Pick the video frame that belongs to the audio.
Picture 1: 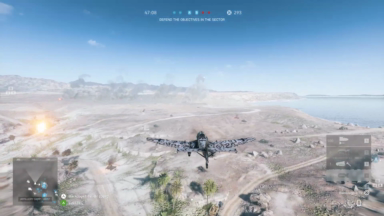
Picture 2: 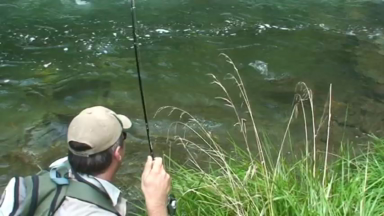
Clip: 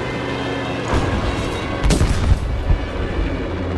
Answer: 1